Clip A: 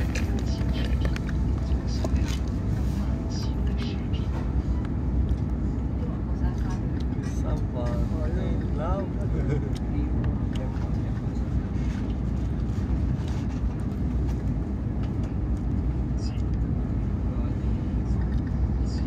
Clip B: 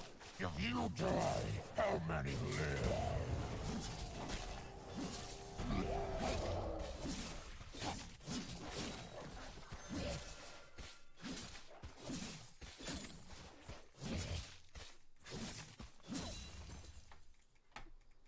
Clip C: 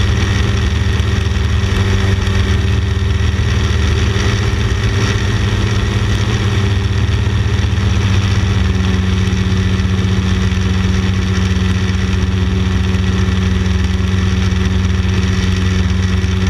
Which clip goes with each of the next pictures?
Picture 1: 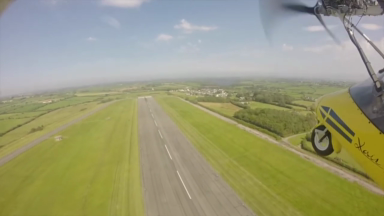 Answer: C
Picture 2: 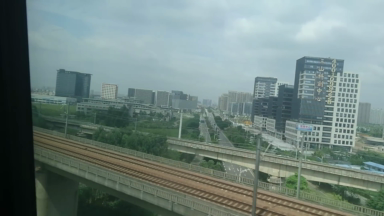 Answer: A